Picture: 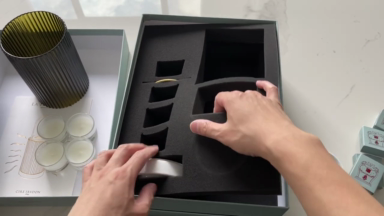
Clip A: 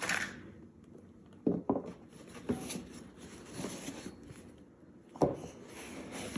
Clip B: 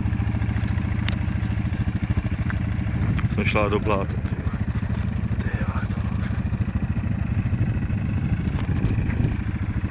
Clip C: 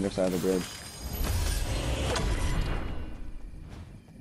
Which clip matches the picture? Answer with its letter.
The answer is A